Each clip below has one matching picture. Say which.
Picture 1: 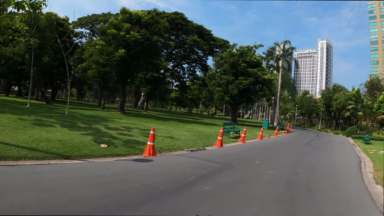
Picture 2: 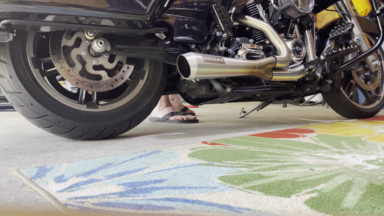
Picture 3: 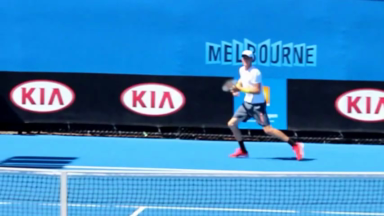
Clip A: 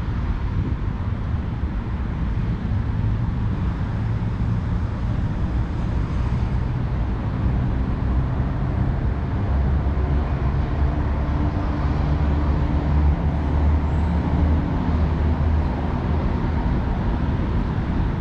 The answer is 1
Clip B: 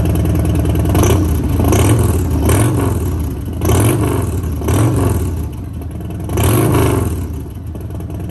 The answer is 2